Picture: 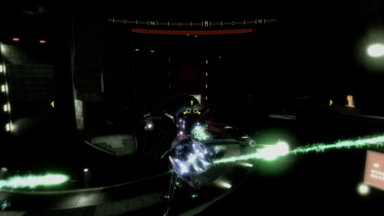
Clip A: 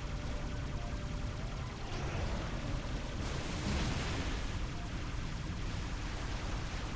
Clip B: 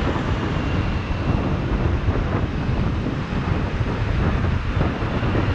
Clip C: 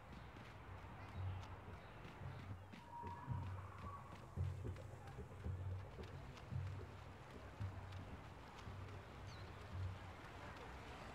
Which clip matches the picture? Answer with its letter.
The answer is A